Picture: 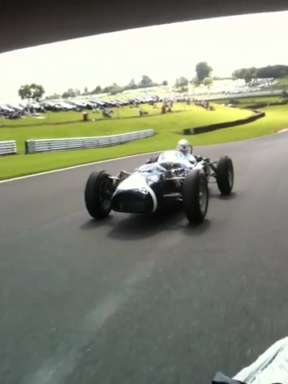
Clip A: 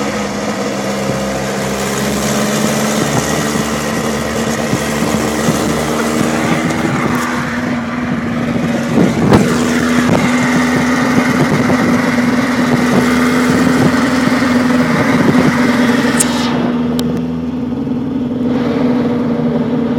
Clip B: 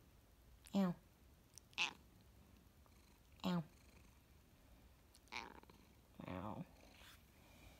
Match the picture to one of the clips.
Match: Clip A